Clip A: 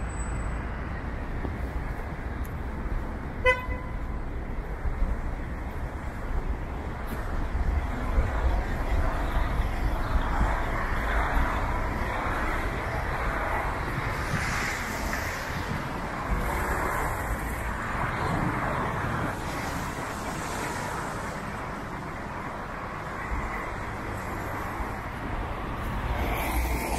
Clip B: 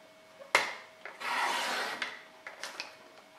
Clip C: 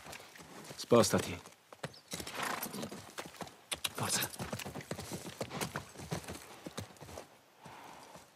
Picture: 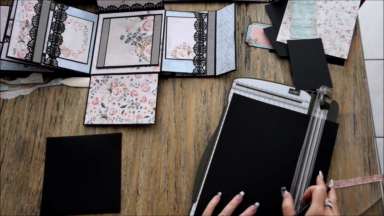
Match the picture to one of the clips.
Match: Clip B